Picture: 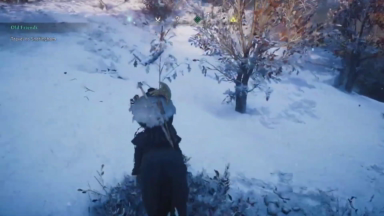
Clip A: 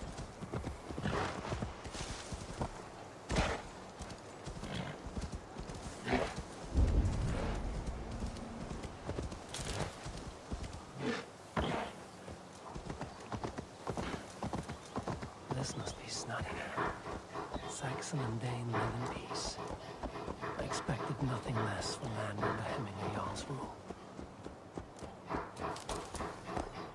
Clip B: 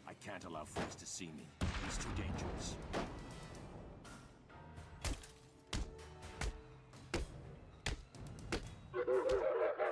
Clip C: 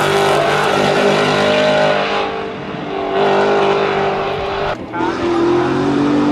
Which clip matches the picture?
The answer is A